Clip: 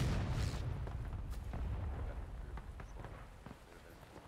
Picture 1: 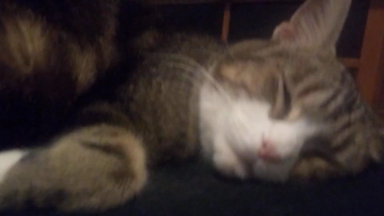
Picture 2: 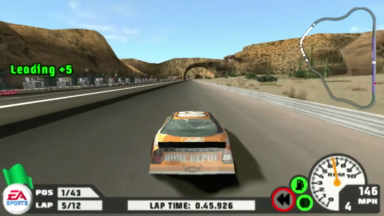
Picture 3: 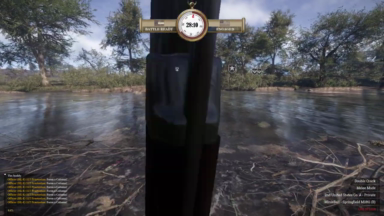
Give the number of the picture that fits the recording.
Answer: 3